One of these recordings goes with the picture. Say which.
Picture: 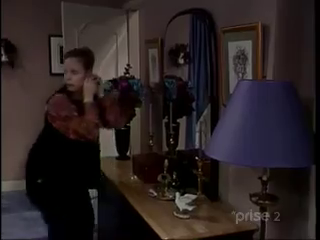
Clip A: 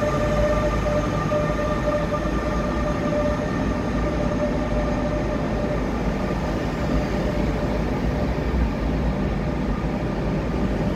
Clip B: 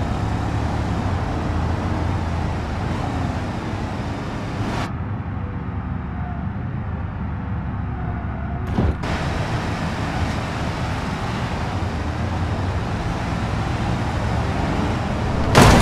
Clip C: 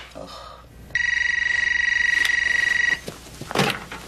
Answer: C